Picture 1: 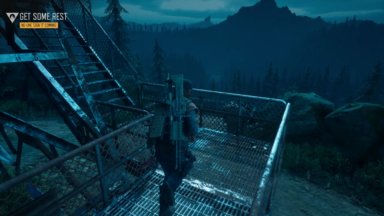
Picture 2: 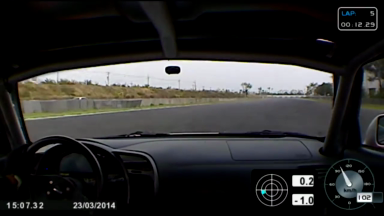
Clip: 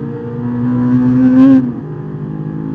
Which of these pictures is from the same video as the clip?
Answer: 2